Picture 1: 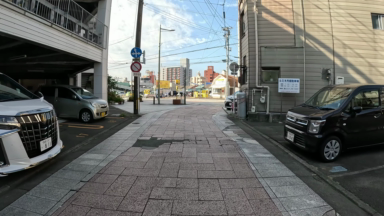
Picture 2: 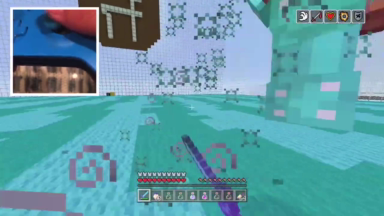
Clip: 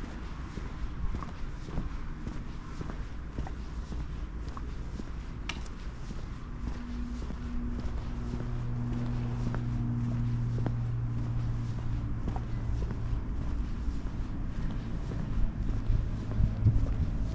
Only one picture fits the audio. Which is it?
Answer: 1